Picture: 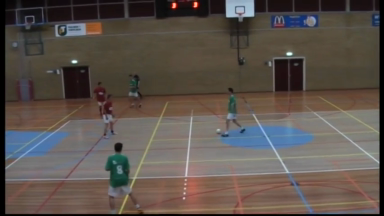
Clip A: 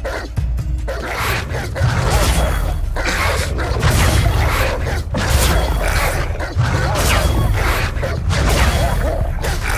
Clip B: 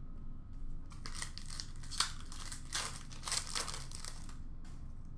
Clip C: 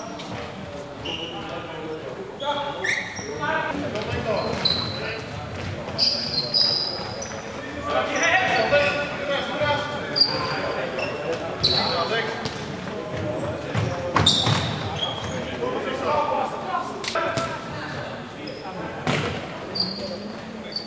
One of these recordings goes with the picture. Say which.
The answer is C